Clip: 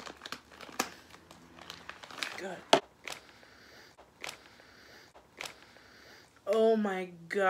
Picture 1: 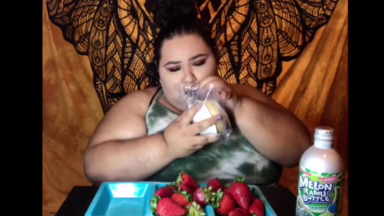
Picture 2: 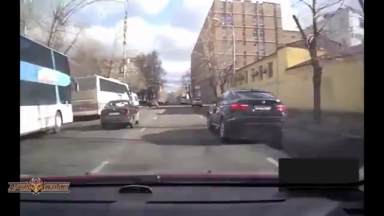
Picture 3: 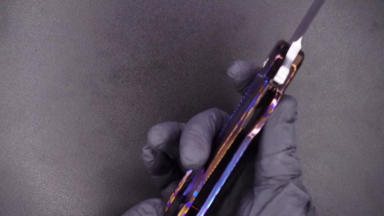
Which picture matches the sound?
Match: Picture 1